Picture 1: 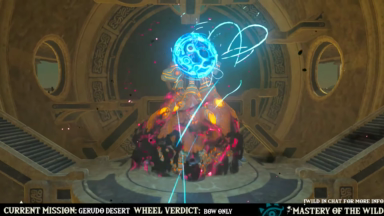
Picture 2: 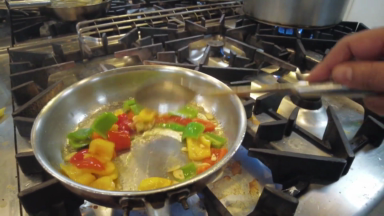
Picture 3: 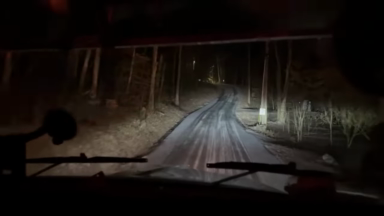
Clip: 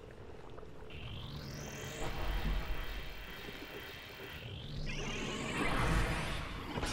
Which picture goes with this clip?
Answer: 1